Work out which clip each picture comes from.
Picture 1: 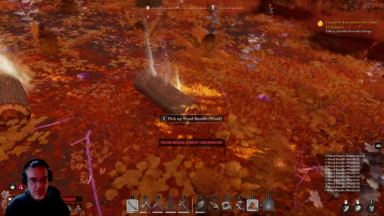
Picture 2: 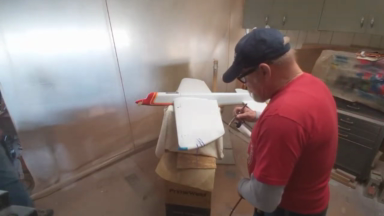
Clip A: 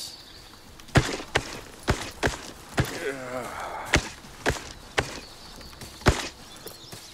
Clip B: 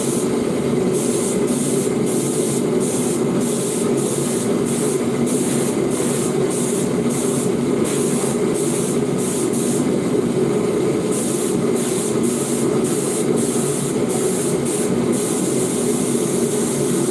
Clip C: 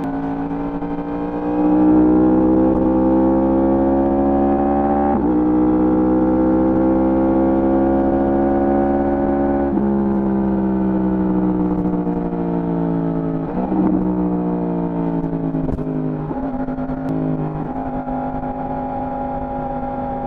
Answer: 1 A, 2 B